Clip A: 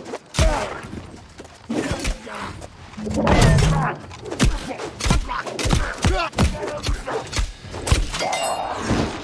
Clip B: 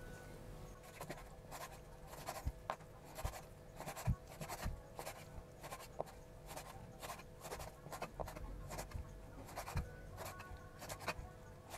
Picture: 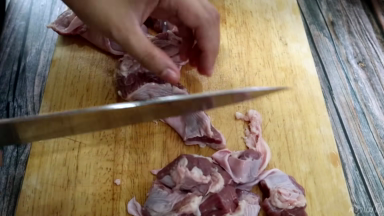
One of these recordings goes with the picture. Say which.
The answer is B